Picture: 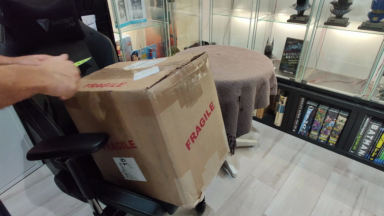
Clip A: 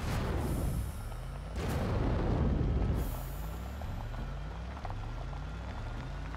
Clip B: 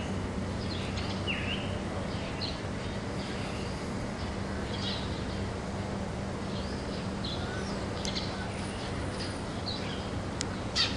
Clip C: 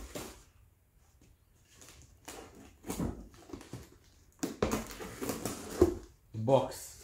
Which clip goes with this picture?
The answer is C